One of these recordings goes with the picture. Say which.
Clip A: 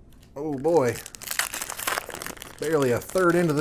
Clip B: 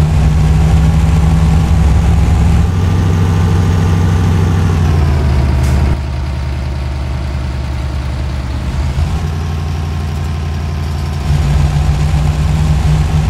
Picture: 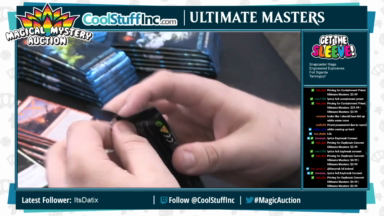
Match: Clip A